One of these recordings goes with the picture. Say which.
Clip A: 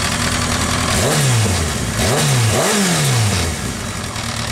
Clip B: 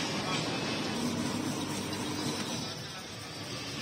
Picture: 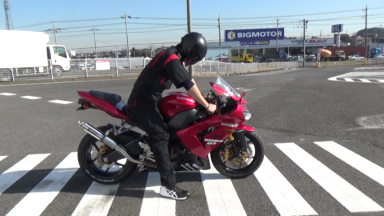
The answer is A